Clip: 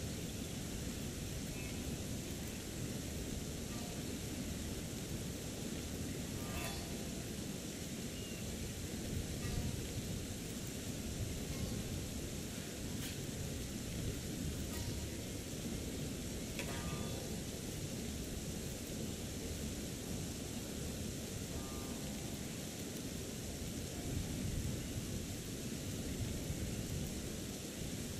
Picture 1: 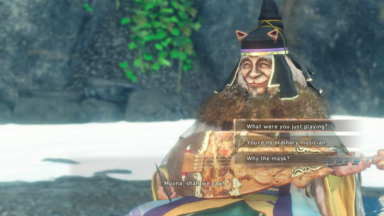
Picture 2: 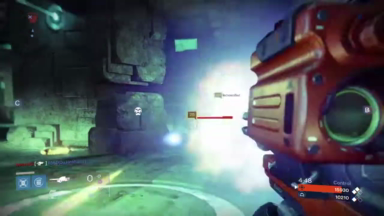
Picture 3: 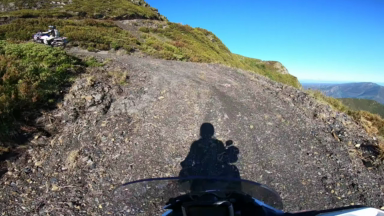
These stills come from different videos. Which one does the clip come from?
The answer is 1